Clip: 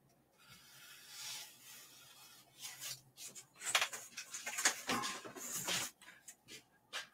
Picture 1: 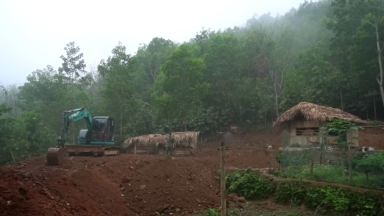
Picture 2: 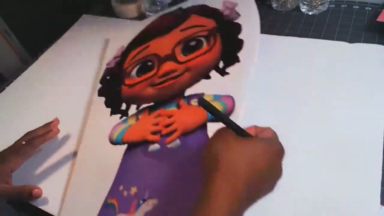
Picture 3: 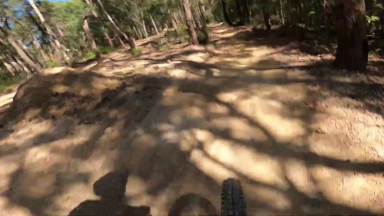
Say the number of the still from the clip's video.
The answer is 2